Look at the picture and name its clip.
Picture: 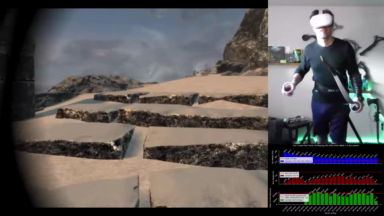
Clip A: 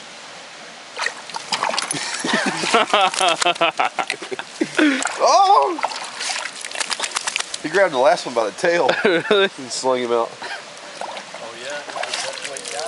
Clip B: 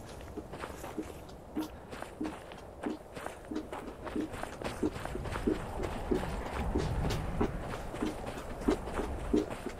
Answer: B